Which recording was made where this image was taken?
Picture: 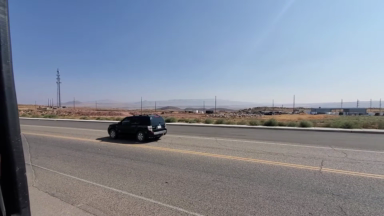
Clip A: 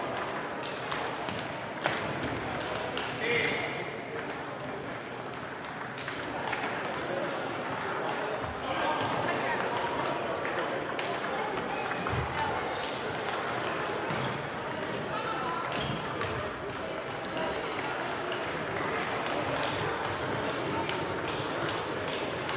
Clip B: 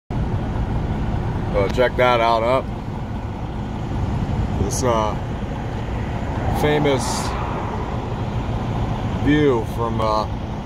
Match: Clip B